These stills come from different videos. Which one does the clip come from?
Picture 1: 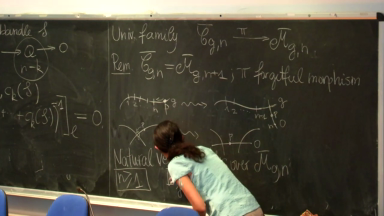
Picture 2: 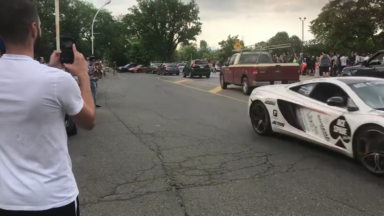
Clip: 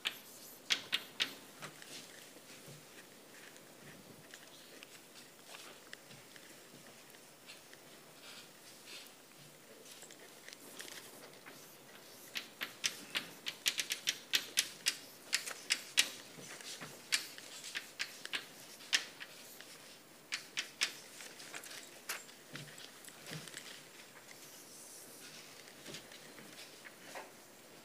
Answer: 1